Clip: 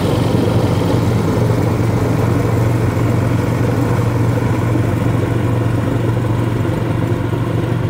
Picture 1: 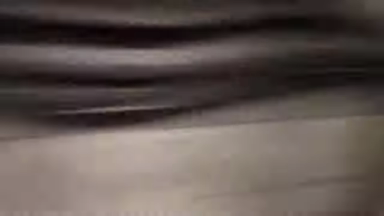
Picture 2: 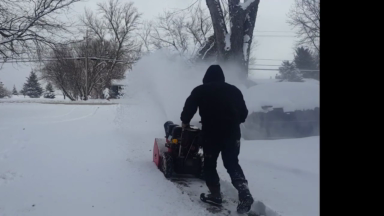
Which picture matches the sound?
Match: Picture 2